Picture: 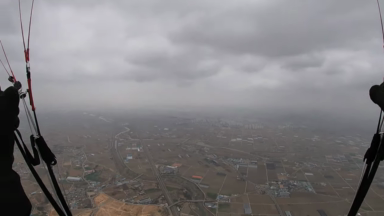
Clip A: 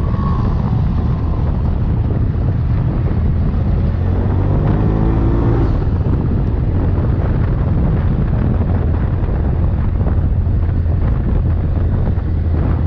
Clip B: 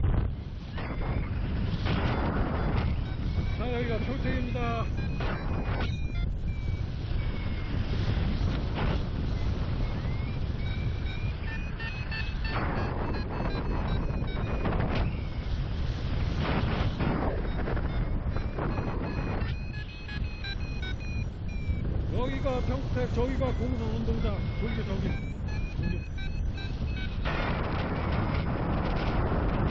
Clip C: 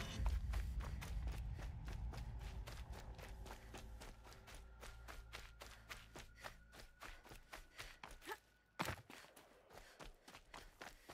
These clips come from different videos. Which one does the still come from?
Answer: B